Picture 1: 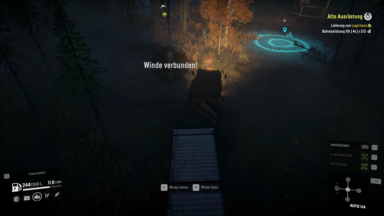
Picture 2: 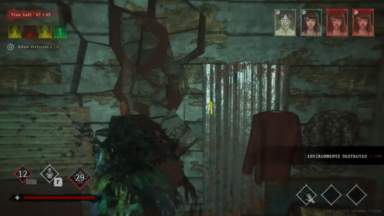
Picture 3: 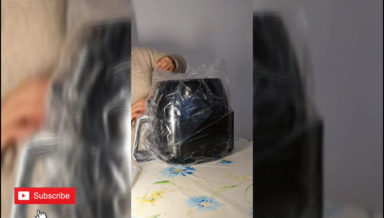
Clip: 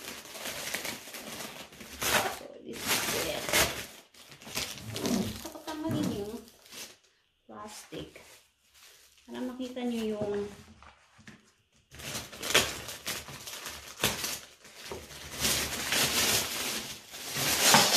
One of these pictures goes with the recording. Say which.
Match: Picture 3